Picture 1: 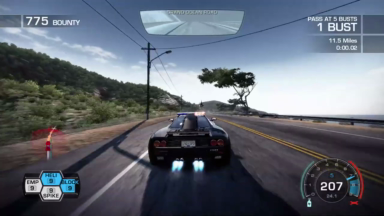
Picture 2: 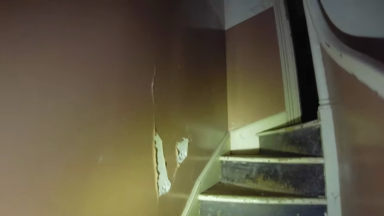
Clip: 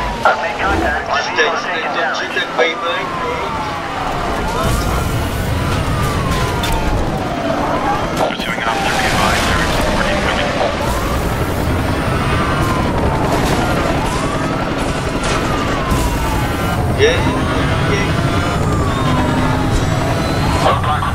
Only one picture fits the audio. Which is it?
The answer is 1